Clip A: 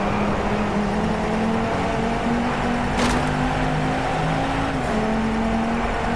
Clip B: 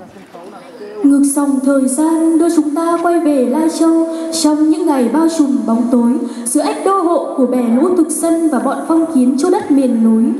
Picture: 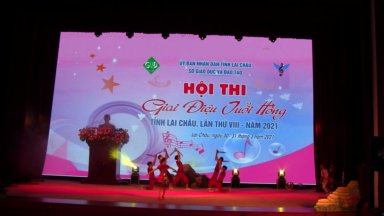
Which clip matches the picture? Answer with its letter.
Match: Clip B